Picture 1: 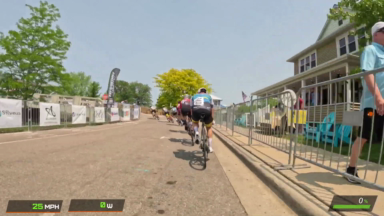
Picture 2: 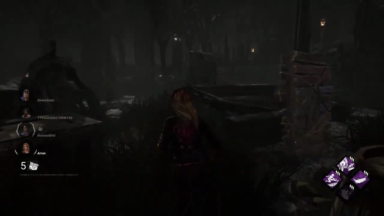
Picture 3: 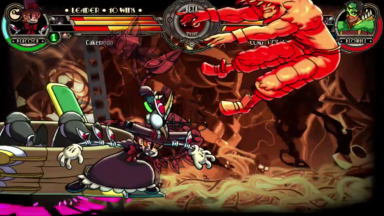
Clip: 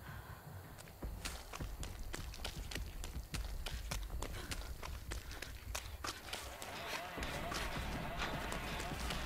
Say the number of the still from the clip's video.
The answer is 2